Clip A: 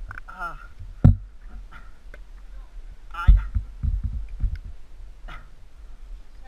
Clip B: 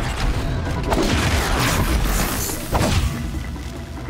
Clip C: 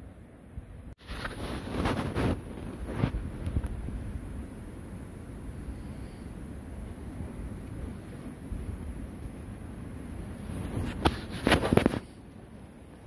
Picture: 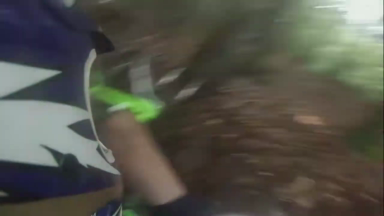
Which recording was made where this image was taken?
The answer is A